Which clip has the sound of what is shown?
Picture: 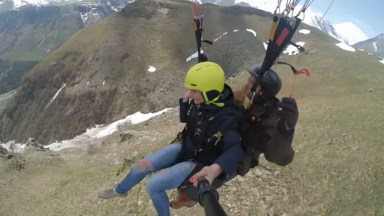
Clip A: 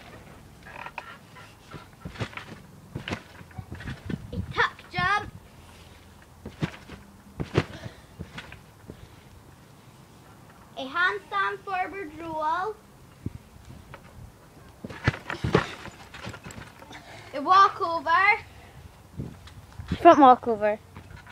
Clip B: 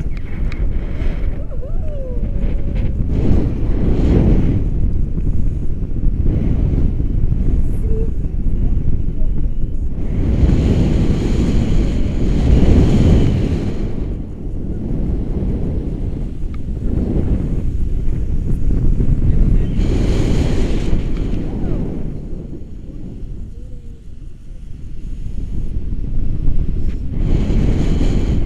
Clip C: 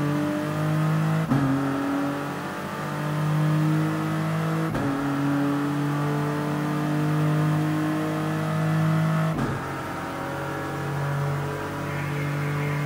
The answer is B